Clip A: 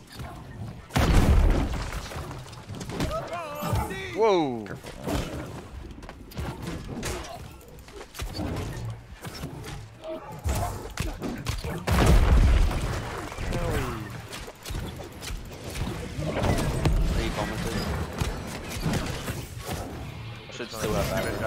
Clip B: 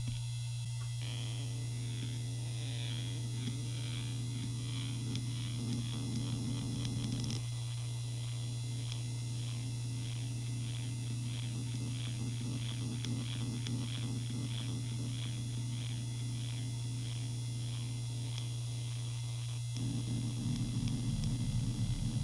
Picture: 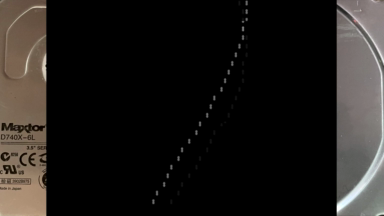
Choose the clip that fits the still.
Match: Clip B